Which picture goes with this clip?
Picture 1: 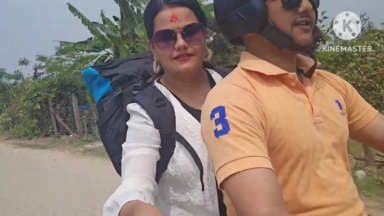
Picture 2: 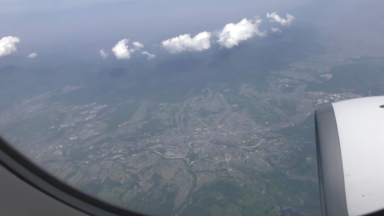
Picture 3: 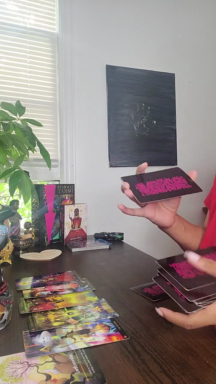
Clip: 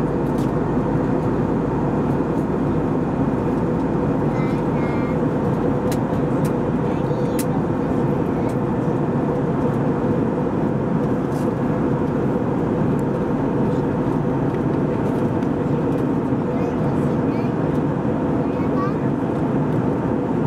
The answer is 2